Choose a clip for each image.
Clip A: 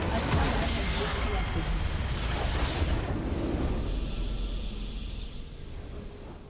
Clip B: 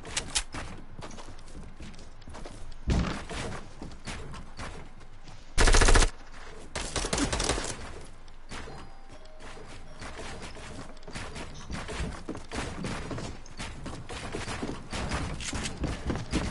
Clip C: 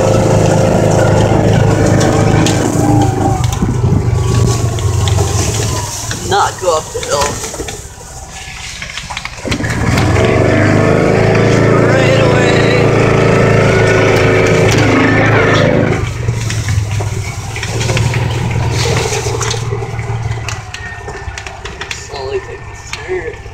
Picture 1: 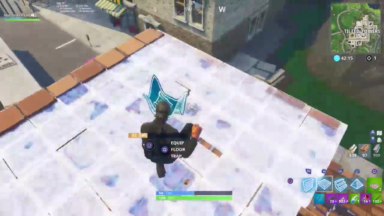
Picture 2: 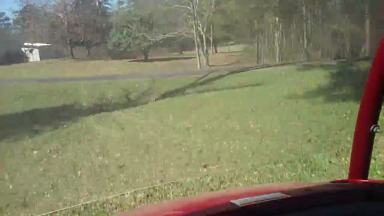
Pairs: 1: B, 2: C